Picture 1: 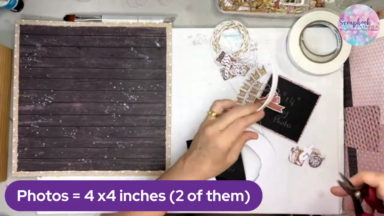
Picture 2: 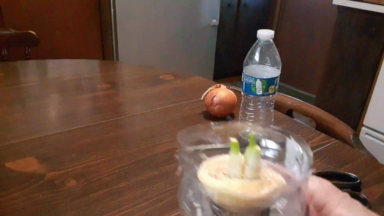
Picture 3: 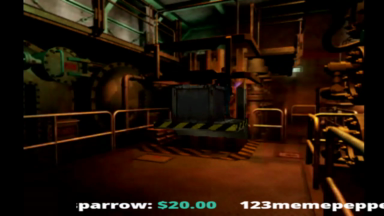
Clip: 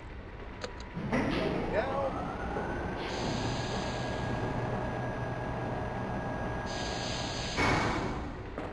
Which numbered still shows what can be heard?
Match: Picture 3